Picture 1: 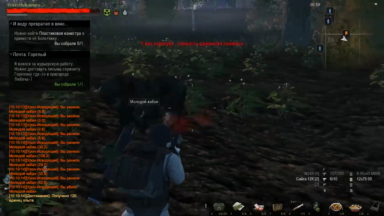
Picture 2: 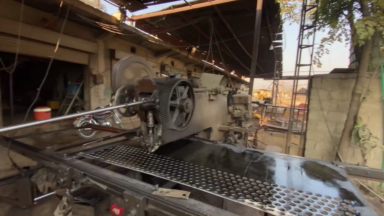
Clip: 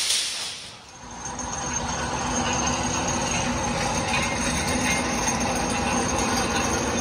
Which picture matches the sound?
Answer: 2